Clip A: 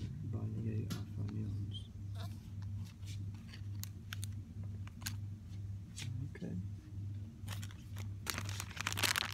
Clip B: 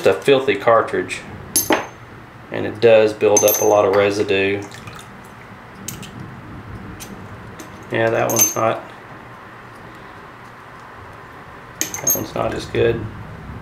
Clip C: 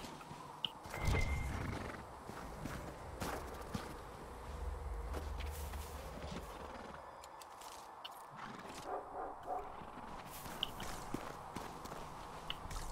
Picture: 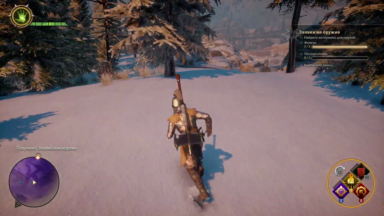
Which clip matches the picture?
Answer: C